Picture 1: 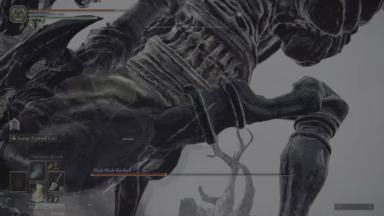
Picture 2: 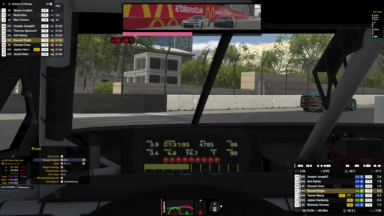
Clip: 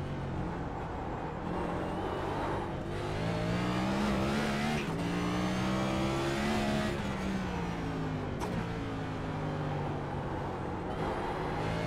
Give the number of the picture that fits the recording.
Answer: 2